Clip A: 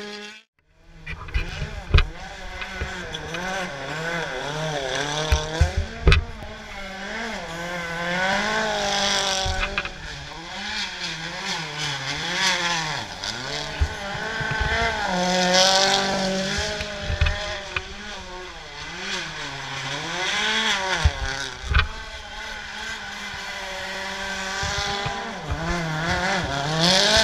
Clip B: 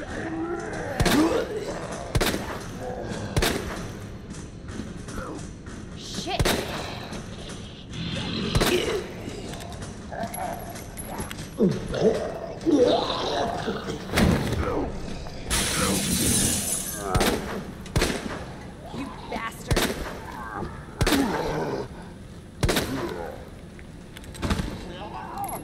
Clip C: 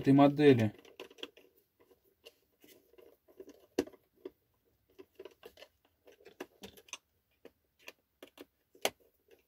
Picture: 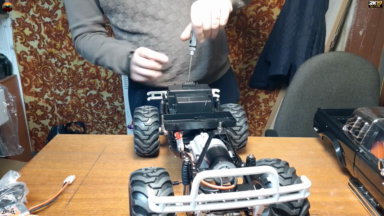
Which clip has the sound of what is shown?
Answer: C